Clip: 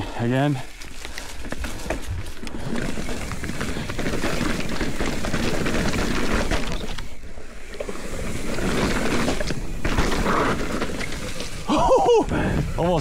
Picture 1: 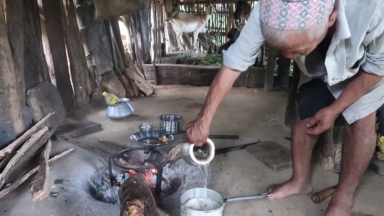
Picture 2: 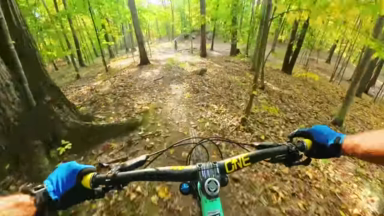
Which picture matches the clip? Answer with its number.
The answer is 2